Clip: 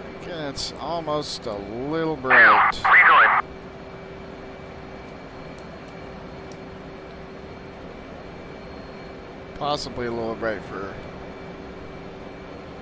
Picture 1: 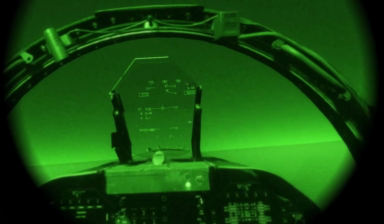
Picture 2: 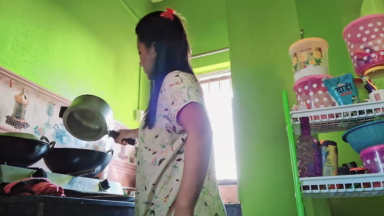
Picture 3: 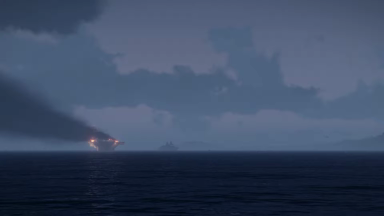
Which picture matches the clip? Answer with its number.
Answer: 1